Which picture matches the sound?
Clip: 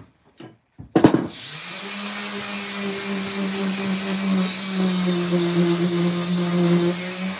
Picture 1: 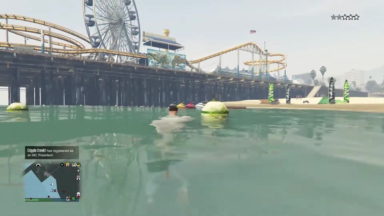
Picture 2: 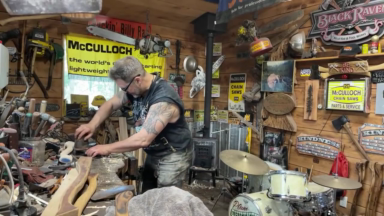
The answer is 2